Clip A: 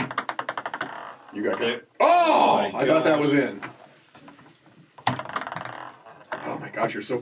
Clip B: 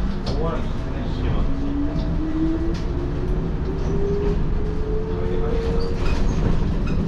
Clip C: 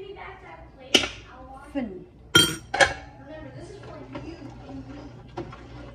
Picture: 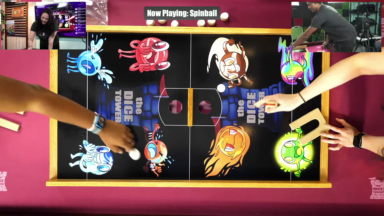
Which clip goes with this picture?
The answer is A